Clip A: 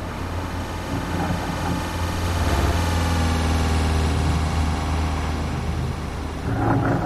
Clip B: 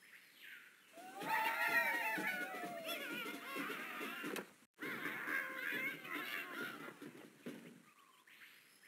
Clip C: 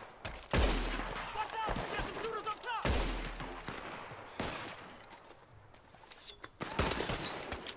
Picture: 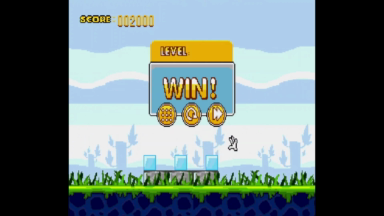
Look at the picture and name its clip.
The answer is B